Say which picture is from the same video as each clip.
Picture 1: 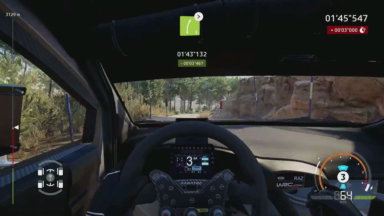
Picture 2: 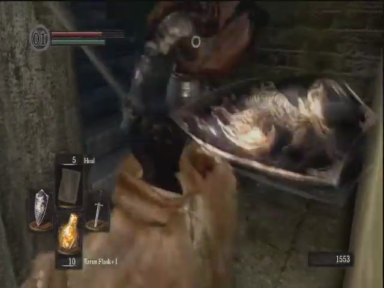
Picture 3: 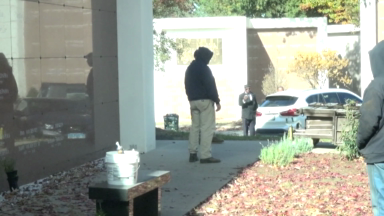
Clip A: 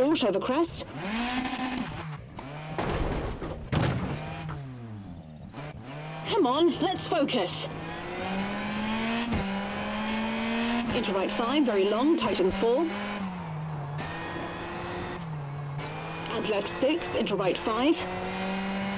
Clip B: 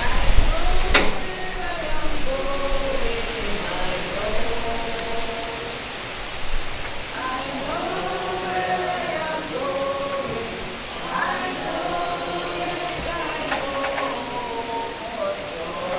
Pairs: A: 1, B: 3